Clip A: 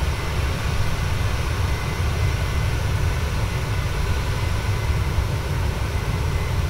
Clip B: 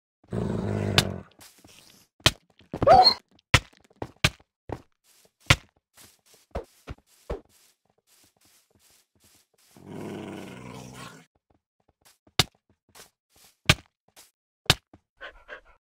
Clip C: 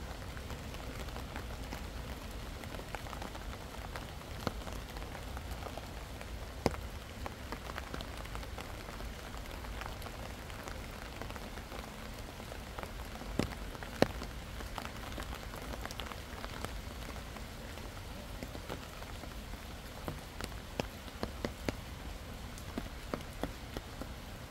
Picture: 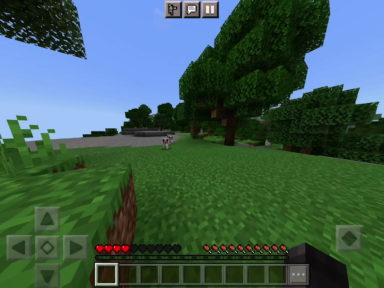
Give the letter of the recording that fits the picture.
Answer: B